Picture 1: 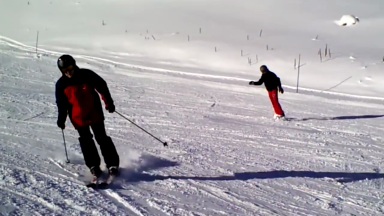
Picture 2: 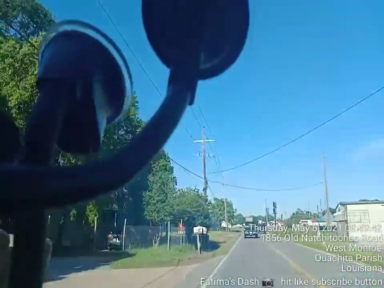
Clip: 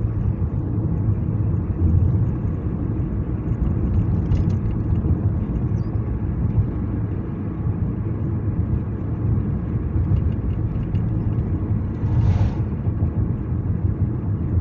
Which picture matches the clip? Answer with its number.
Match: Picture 2